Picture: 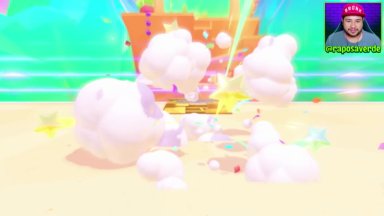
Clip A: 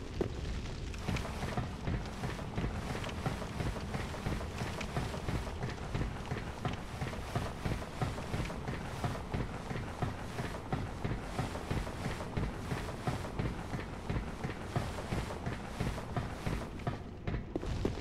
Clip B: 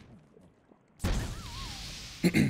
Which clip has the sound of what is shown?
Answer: B